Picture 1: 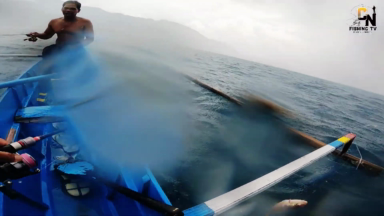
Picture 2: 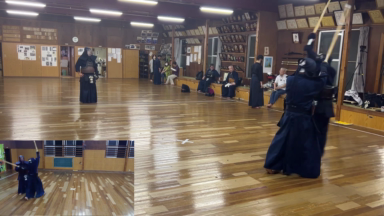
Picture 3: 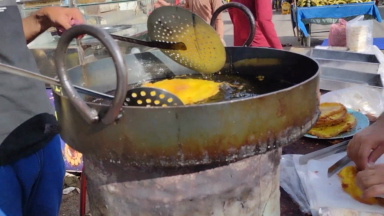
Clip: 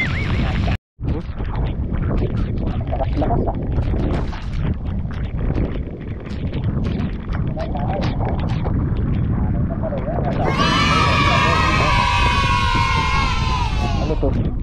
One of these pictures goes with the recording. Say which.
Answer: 1